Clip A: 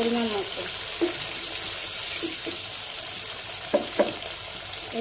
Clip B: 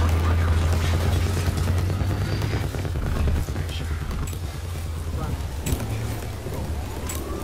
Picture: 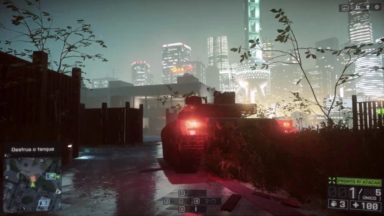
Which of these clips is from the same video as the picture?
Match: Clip B